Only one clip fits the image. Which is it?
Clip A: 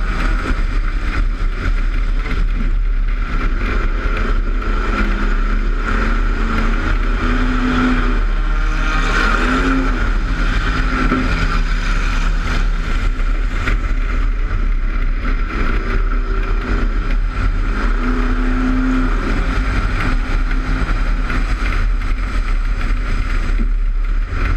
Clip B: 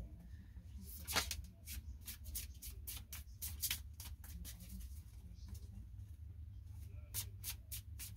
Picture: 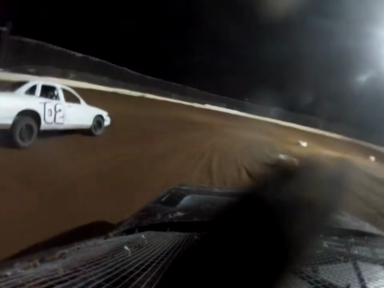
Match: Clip A